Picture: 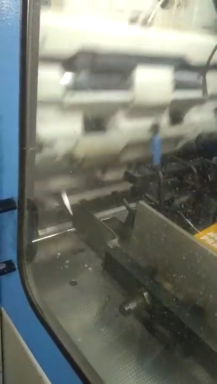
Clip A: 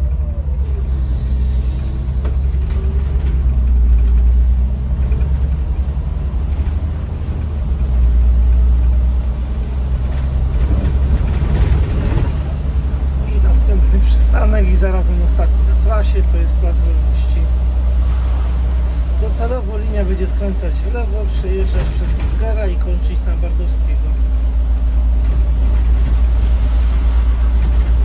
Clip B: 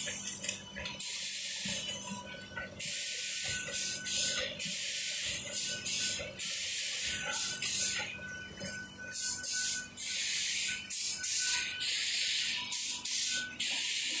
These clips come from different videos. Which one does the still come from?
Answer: B